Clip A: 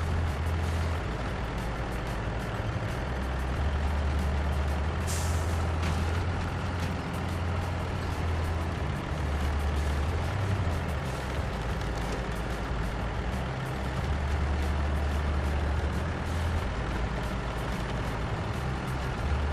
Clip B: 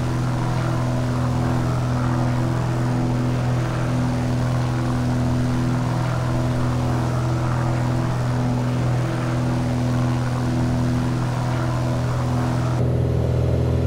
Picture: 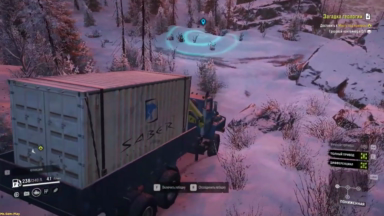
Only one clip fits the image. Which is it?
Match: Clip A